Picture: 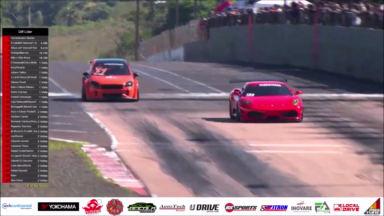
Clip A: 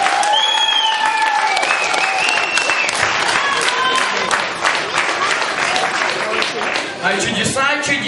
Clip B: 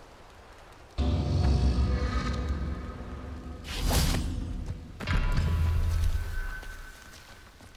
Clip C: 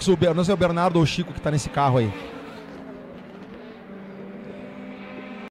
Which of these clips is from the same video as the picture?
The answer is C